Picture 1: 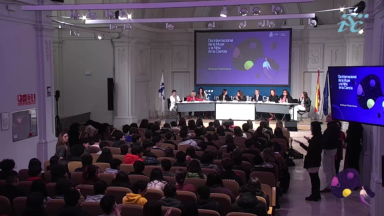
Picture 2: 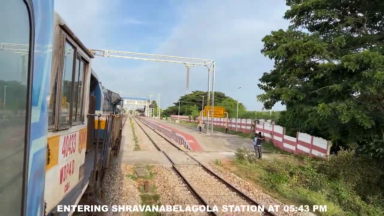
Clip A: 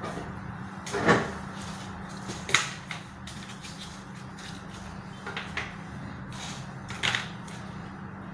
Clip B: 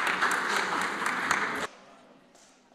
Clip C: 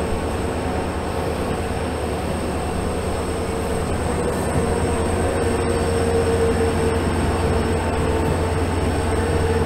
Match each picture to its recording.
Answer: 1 B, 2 C